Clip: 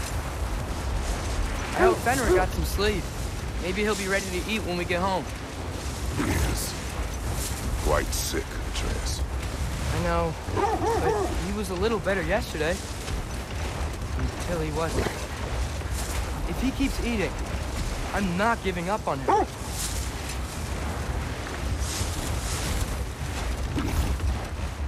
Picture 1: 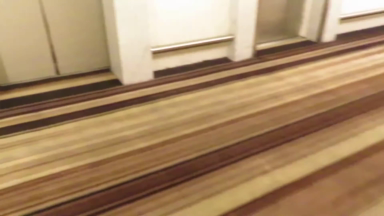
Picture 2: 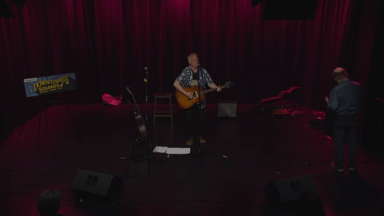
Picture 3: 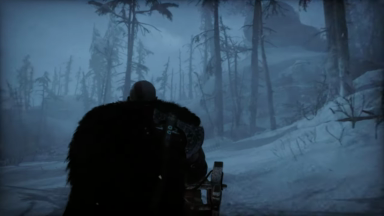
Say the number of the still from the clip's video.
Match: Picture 3